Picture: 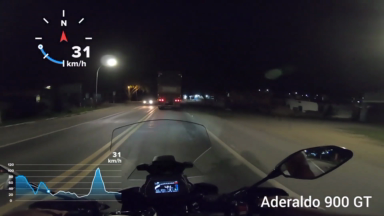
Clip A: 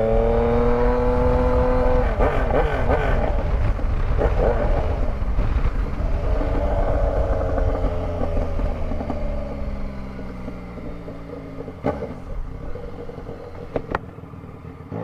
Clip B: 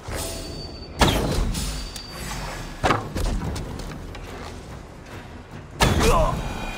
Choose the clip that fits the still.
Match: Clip A